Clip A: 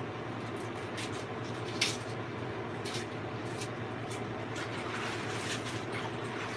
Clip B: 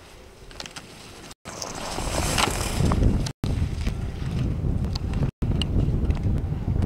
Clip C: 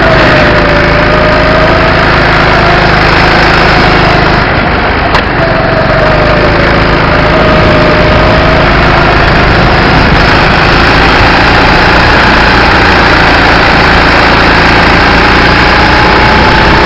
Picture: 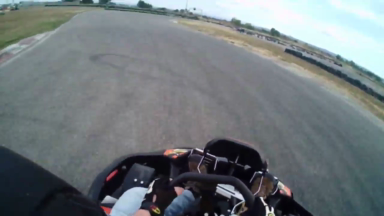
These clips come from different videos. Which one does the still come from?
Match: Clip C